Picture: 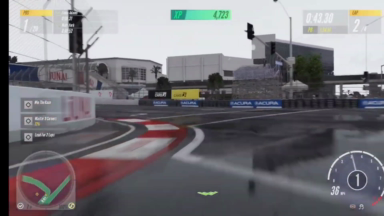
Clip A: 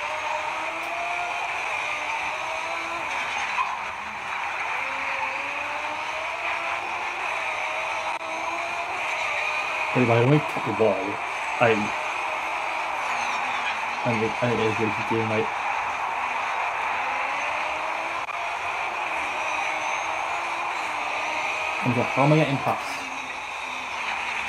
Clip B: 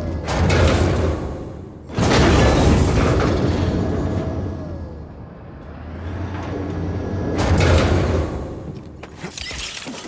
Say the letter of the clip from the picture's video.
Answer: A